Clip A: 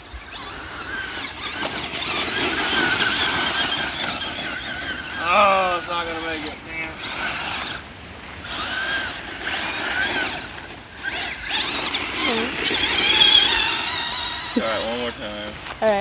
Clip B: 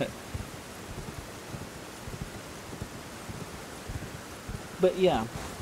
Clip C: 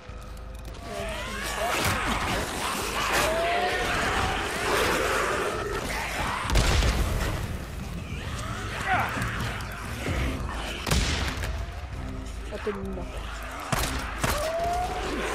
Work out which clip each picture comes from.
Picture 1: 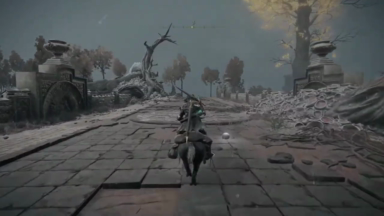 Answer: B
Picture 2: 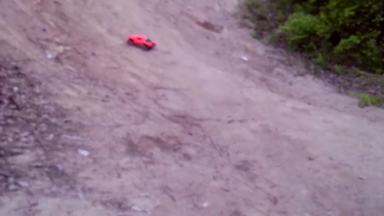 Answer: A